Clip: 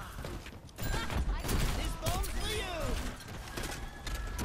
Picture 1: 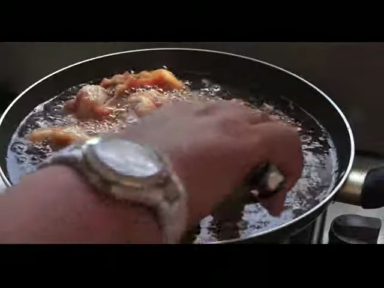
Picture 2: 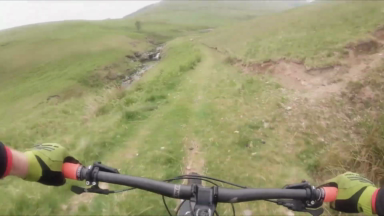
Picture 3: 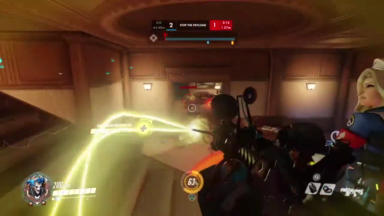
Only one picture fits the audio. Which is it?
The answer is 3